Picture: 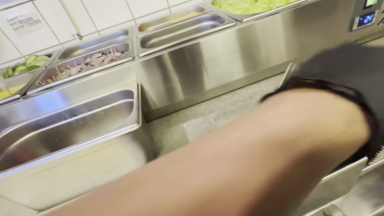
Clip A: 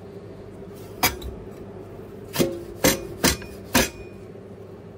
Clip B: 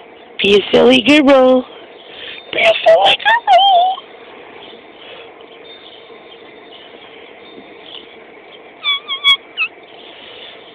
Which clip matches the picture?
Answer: A